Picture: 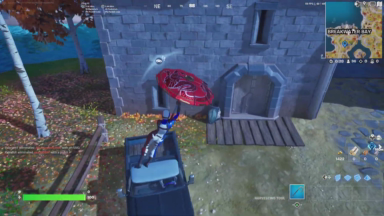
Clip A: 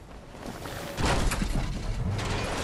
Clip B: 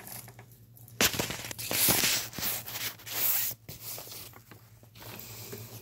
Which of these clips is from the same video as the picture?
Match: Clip A